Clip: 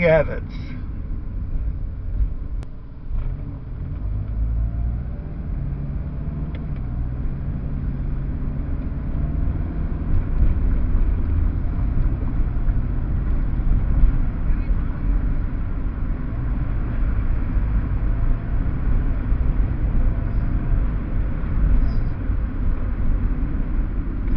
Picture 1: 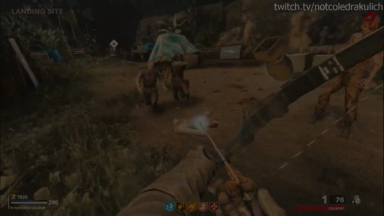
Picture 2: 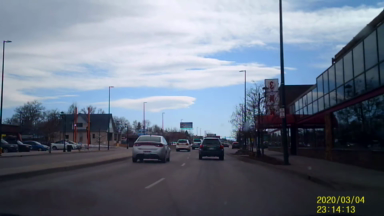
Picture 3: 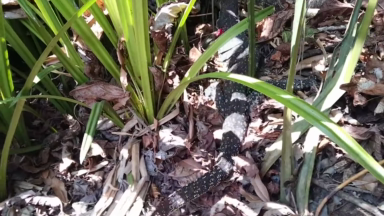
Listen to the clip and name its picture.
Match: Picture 2